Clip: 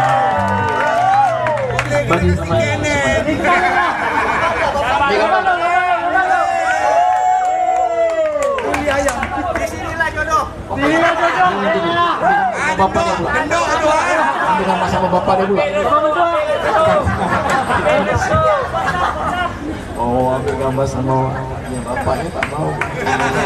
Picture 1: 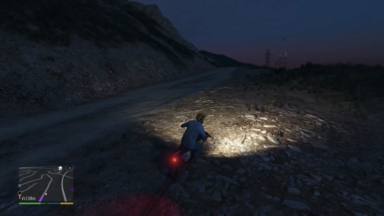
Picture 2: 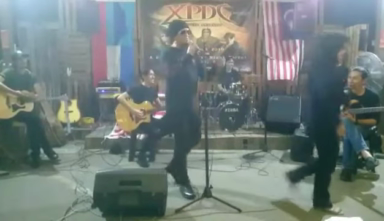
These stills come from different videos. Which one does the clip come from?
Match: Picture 2